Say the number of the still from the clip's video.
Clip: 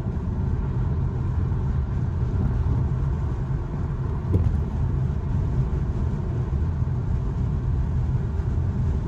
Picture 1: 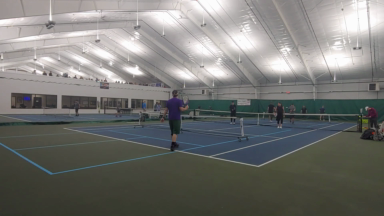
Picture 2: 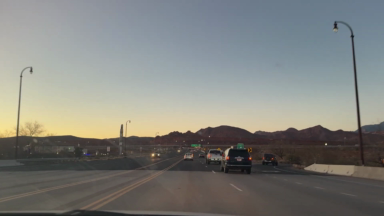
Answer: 2